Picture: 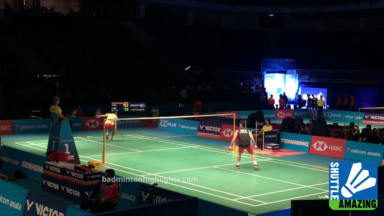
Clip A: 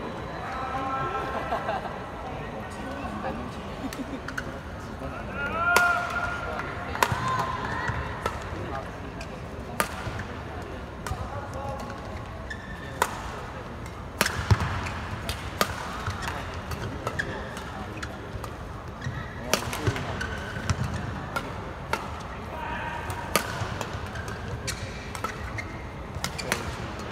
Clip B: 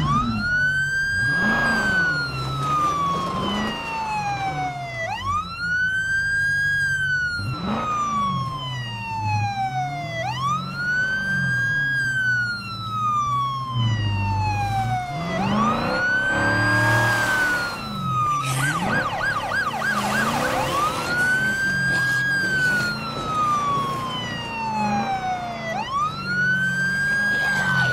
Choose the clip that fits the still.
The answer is A